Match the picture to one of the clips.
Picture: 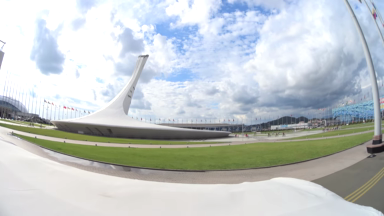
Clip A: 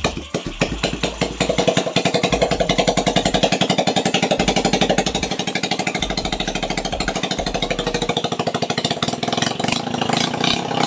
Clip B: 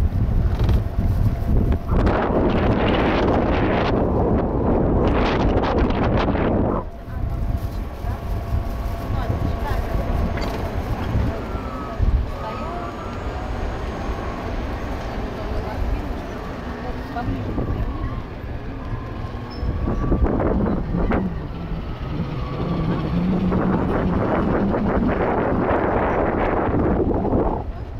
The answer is B